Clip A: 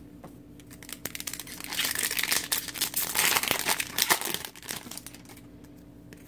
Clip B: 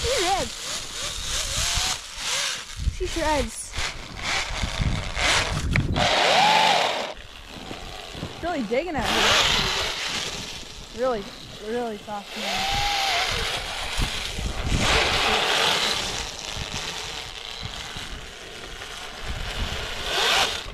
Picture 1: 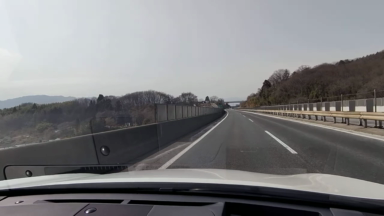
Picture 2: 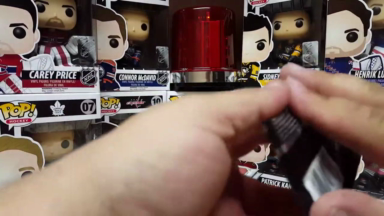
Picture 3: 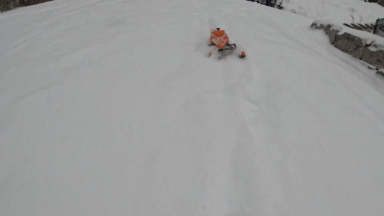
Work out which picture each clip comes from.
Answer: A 2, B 3